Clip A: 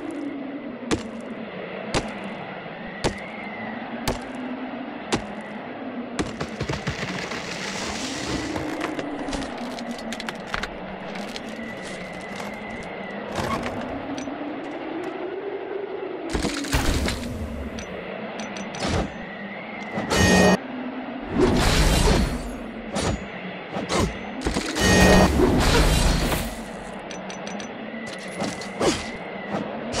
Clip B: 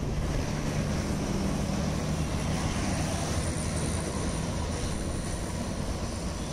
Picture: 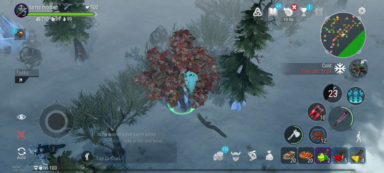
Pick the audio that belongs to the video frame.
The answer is A